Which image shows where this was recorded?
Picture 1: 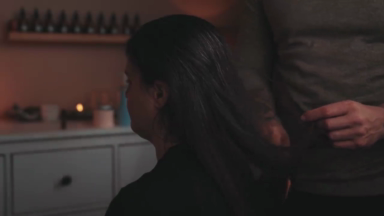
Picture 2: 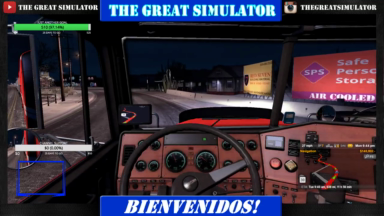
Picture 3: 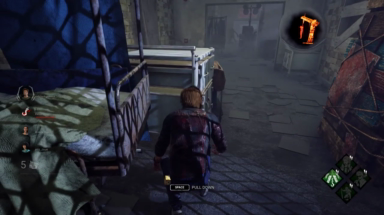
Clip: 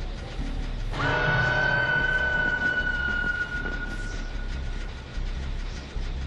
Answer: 3